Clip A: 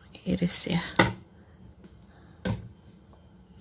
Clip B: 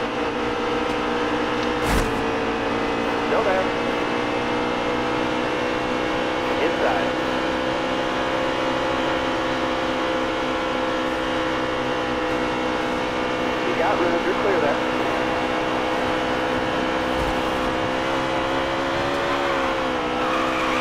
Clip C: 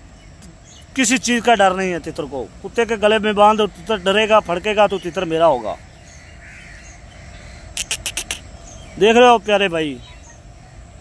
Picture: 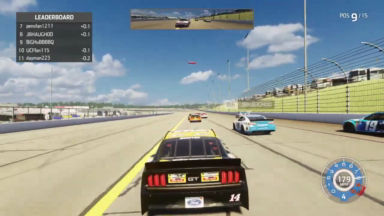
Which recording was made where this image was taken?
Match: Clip B